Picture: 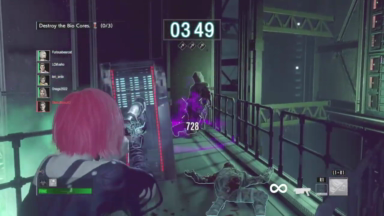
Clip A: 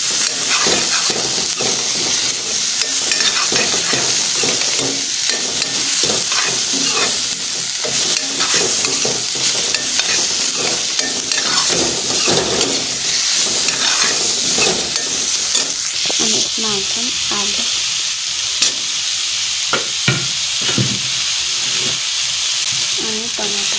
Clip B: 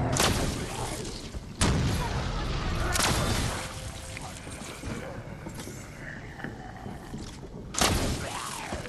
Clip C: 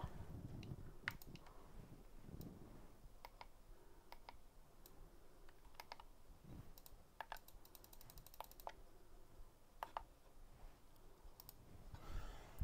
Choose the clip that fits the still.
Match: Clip B